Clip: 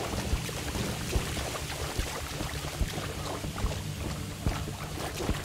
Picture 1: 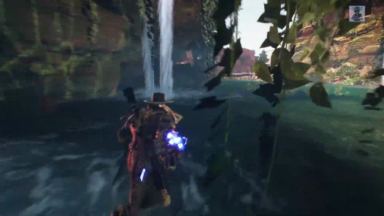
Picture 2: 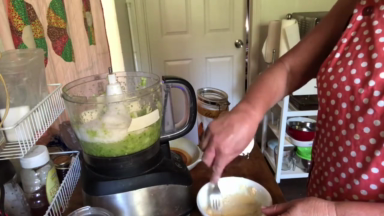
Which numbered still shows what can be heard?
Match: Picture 1